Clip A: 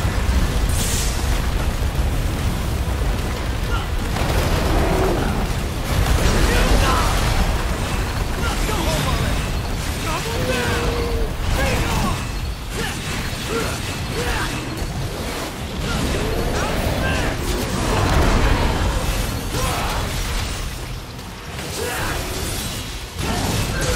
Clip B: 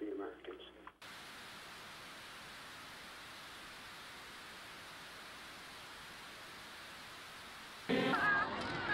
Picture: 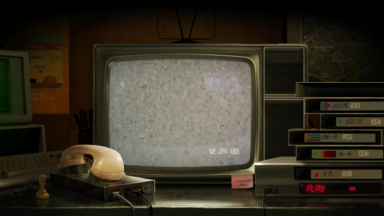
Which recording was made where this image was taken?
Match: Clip B